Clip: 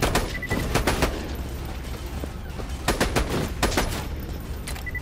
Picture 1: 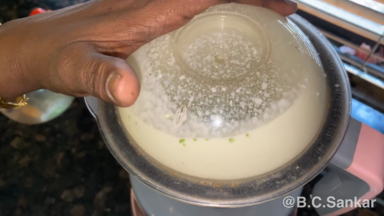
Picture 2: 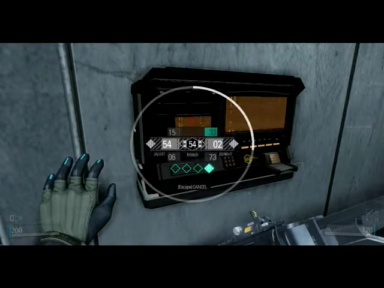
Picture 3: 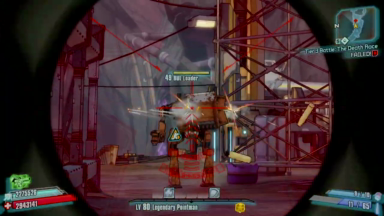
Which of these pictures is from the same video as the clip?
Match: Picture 3